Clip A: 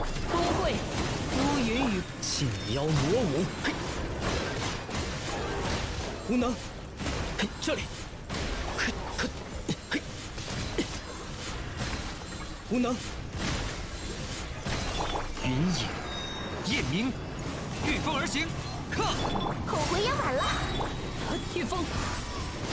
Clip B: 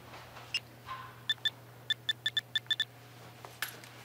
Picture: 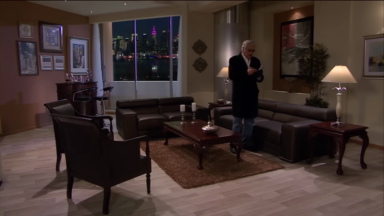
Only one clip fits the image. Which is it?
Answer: B